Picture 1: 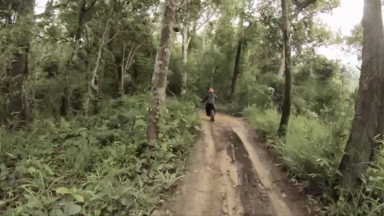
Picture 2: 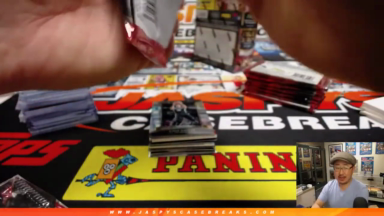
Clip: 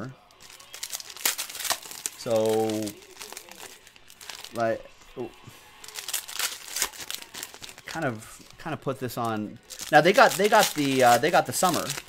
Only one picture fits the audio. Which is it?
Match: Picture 2